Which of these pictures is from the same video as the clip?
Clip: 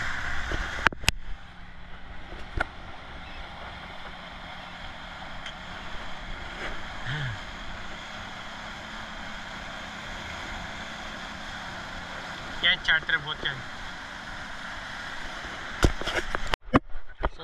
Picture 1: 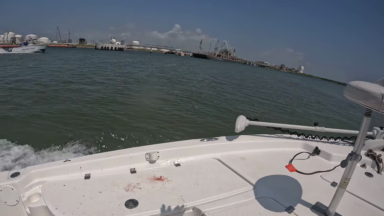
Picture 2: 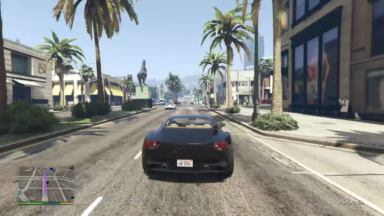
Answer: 1